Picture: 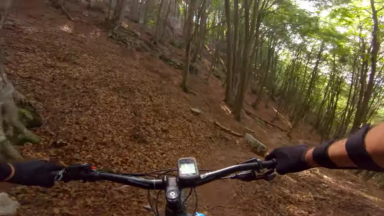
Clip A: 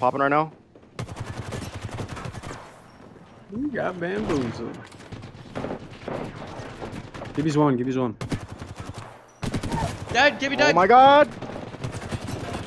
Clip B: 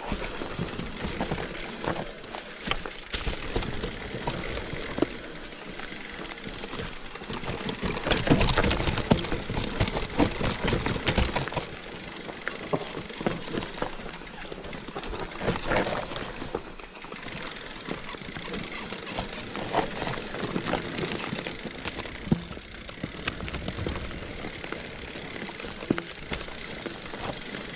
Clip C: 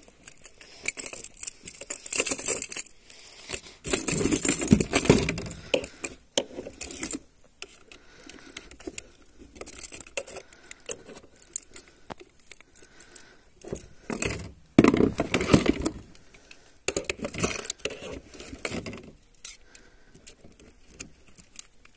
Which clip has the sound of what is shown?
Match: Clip B